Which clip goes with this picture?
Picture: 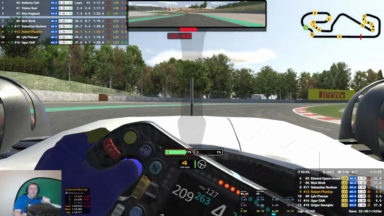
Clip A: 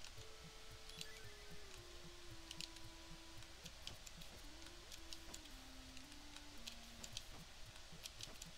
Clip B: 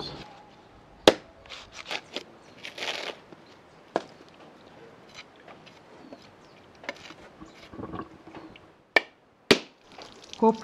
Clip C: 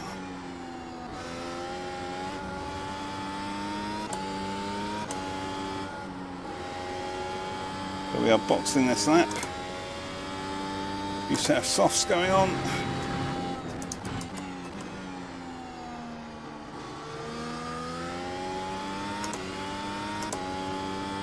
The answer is C